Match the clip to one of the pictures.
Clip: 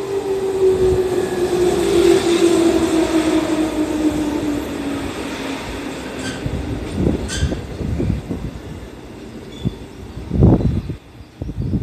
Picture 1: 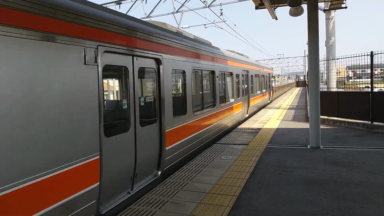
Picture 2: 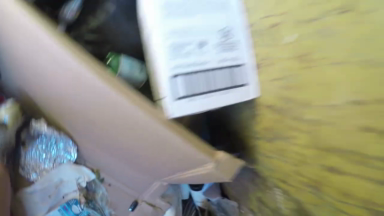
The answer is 1